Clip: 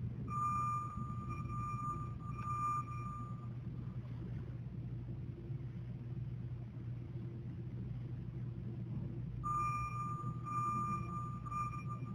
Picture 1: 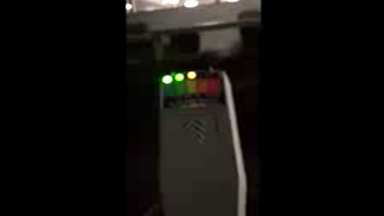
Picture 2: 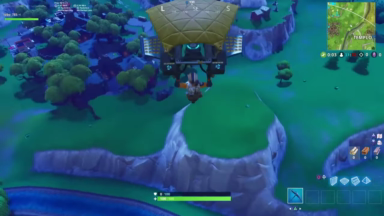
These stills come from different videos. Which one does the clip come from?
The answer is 1